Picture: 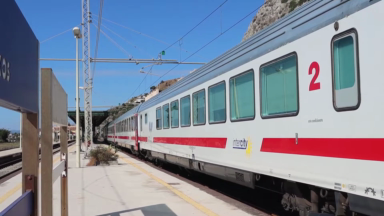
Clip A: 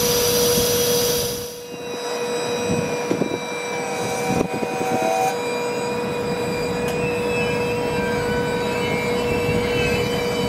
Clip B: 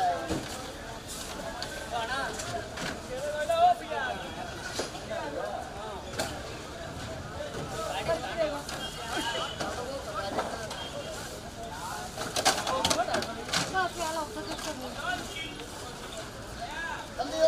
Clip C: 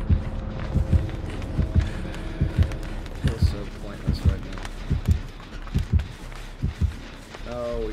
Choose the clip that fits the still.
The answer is A